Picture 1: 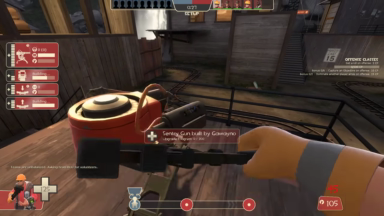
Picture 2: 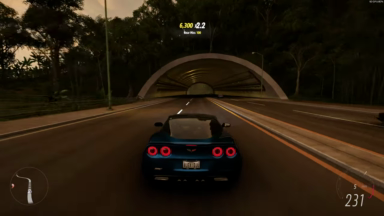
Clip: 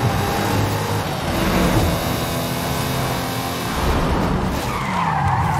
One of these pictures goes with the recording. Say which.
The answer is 2